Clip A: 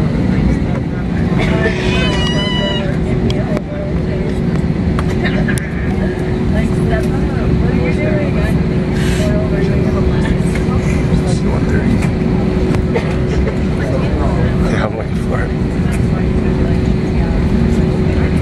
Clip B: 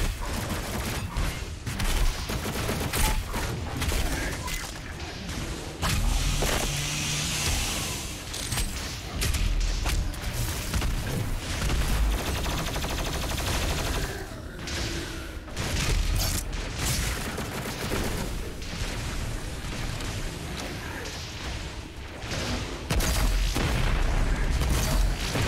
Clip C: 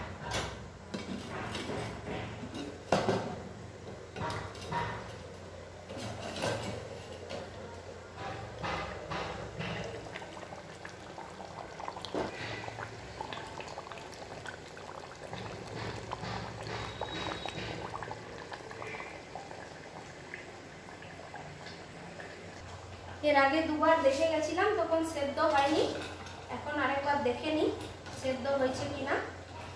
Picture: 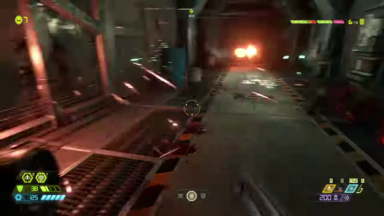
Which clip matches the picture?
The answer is B